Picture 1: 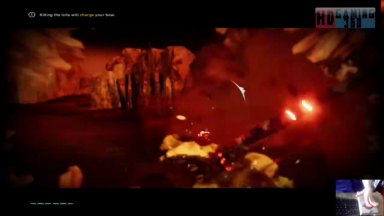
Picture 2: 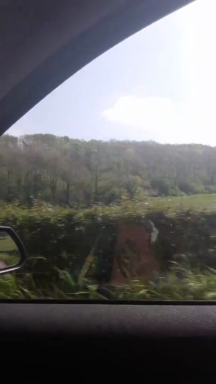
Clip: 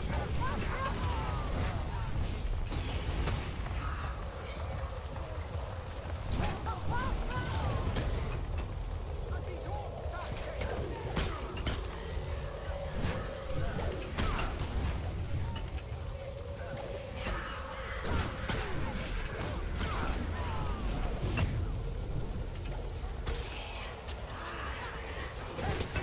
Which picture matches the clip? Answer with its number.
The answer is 1